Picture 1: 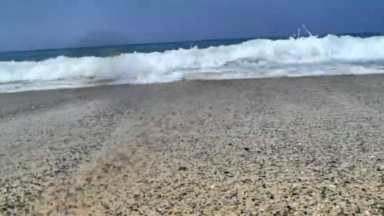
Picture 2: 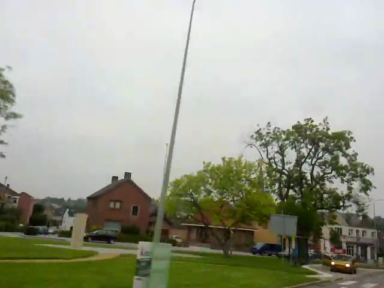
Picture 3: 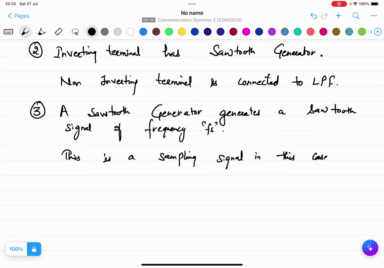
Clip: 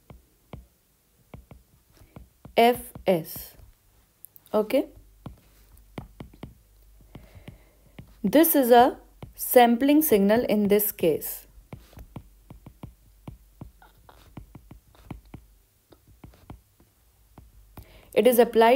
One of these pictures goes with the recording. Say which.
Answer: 3